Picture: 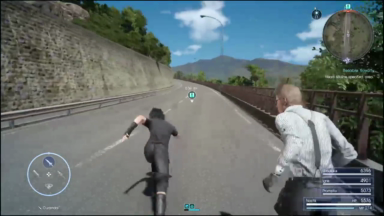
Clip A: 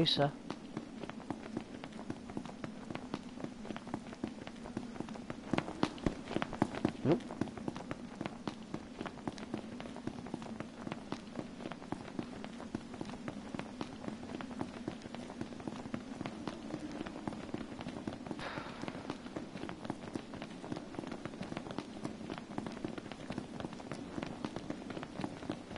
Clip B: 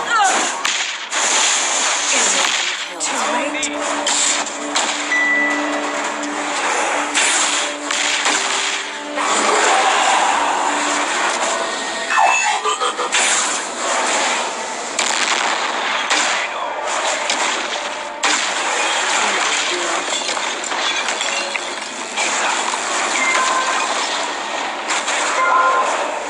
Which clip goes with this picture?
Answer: A